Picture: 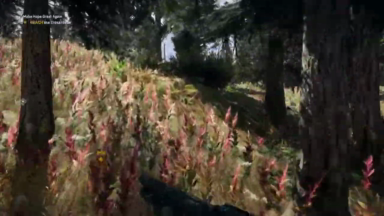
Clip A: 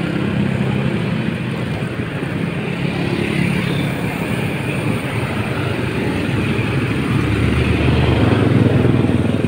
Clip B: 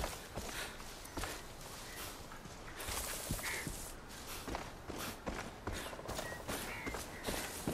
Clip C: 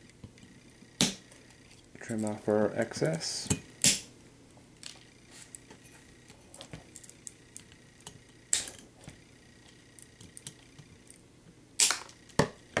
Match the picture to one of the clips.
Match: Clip B